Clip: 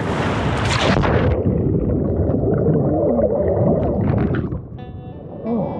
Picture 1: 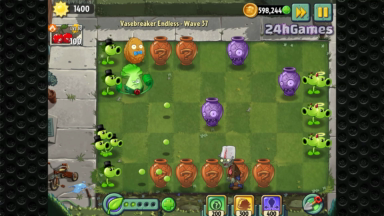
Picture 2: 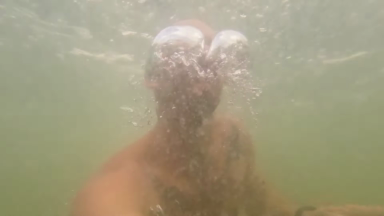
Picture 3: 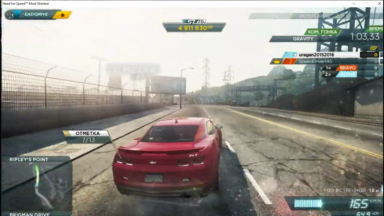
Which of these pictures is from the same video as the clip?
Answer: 2